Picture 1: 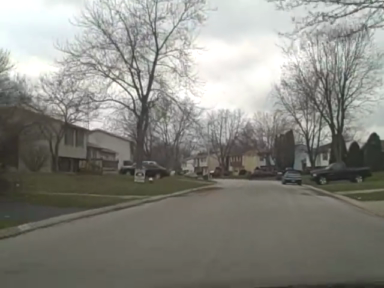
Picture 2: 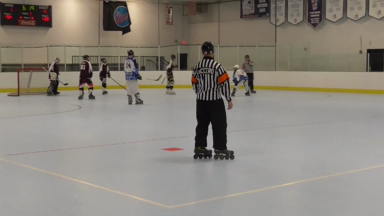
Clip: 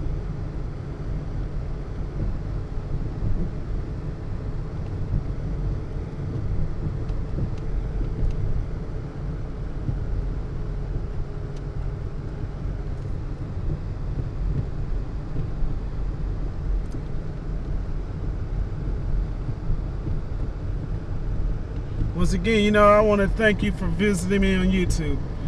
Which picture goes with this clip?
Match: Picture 1